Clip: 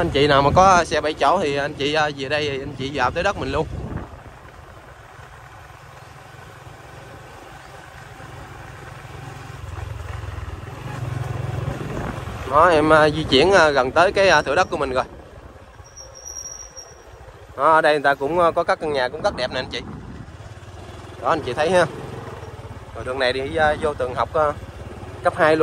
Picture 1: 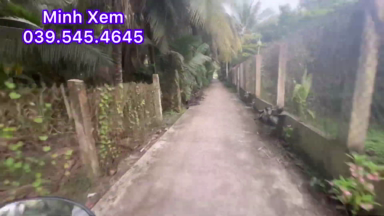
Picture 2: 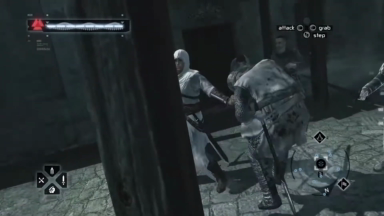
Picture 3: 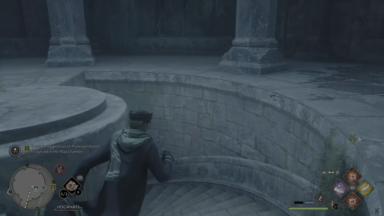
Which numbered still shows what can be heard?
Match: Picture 1